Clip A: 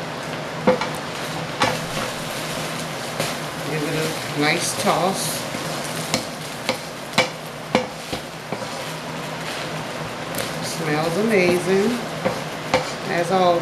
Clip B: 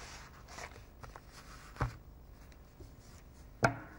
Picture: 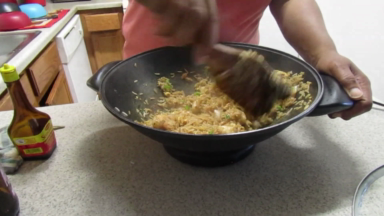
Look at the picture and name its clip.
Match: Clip A